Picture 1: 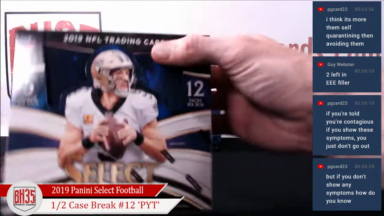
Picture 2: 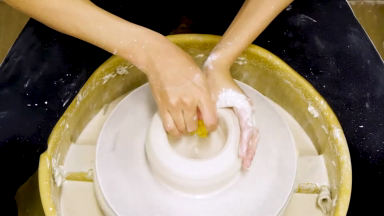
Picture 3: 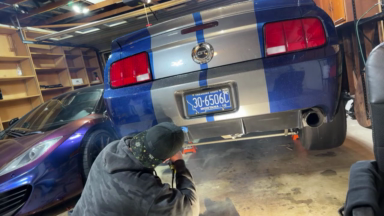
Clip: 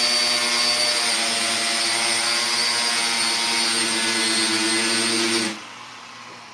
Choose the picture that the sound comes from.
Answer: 3